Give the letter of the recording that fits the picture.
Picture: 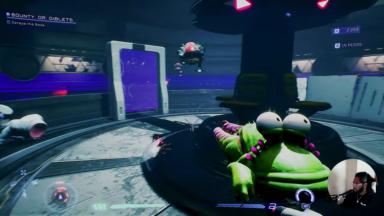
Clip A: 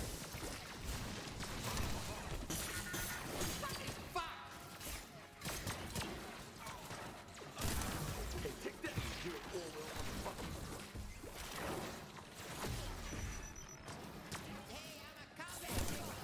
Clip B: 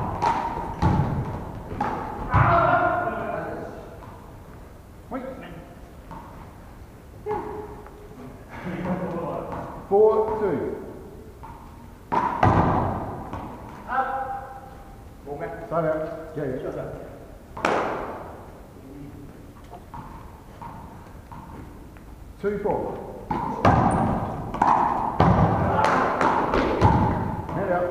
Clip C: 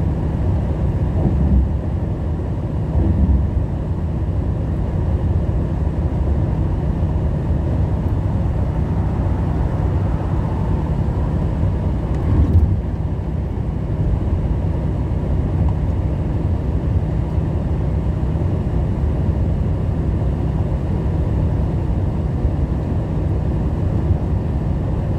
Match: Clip A